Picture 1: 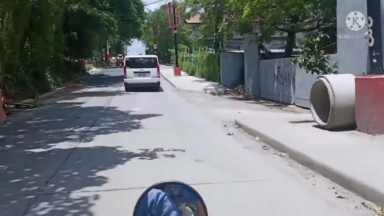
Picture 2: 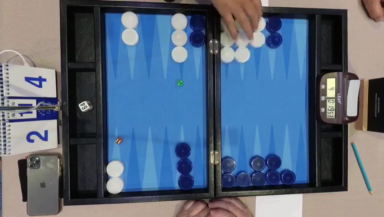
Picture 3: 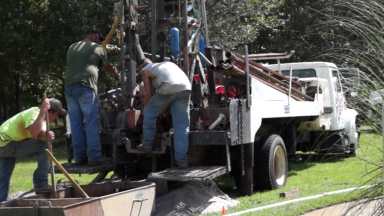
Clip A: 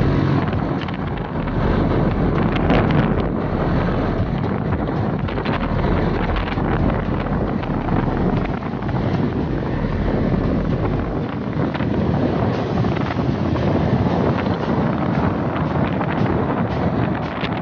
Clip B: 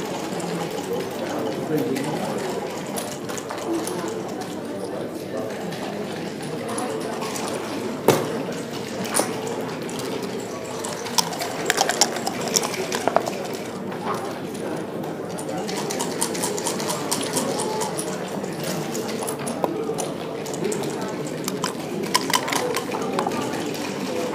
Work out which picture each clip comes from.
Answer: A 1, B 2